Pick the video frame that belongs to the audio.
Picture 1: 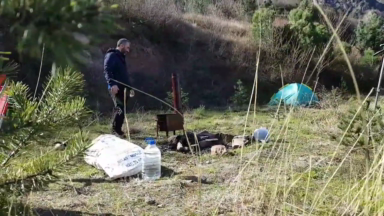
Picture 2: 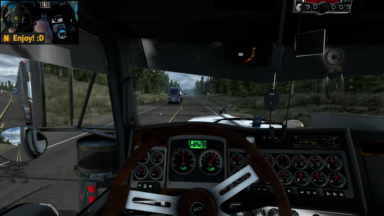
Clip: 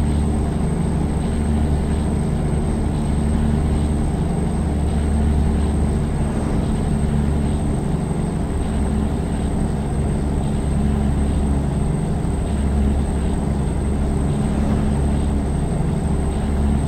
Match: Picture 2